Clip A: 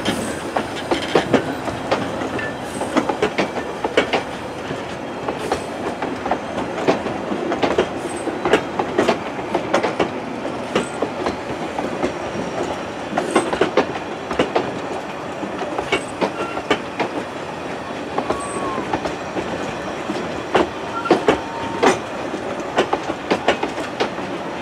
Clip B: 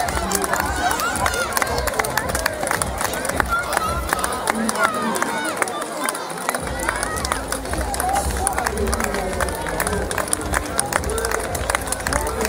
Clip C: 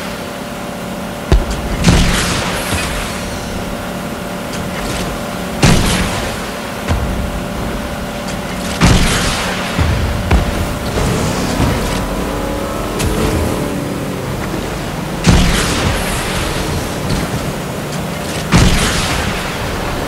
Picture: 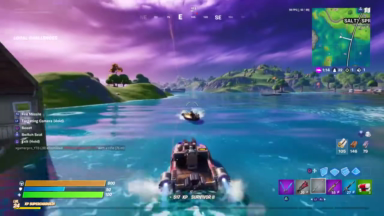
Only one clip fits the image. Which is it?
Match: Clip C